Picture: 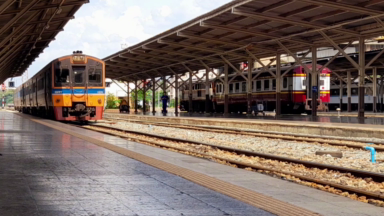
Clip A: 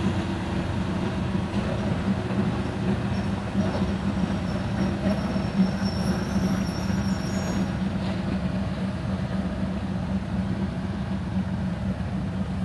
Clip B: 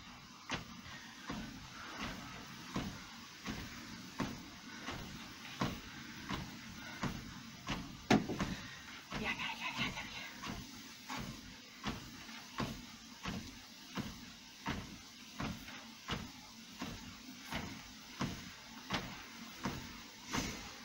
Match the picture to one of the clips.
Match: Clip A